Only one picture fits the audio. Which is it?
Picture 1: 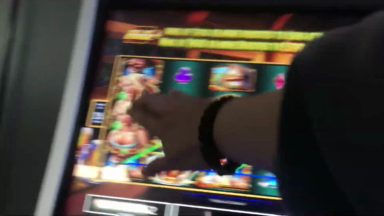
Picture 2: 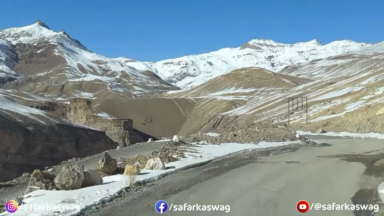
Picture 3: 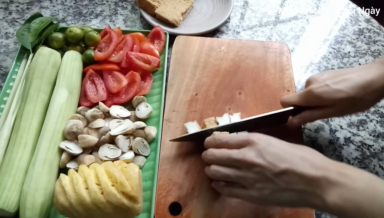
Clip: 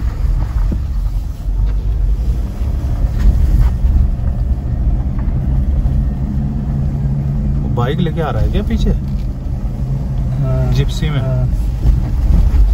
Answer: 2